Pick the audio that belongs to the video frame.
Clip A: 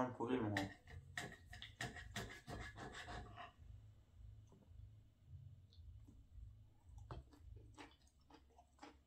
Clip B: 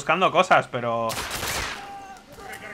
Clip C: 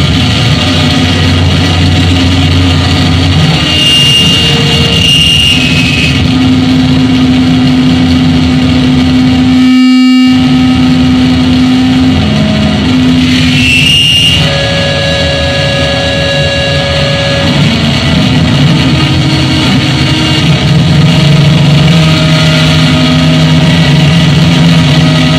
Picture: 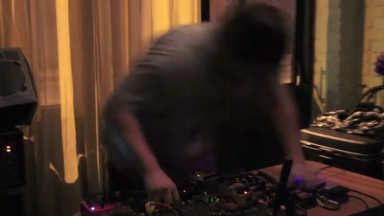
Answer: C